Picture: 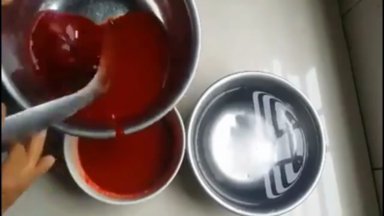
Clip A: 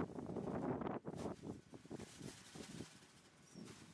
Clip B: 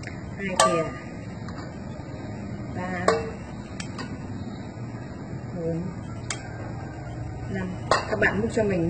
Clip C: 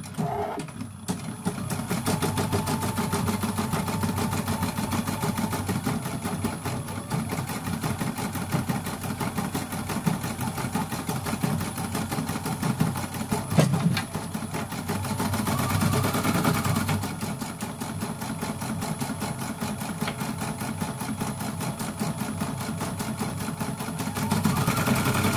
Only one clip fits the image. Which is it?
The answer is B